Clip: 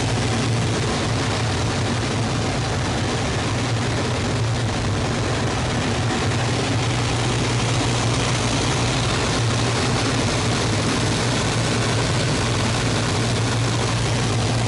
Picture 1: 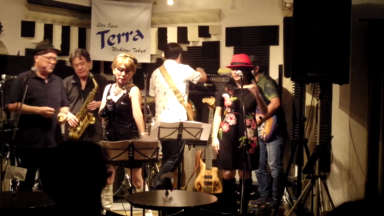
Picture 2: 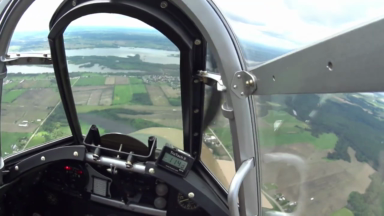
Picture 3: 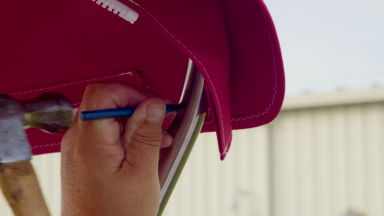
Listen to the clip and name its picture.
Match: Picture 2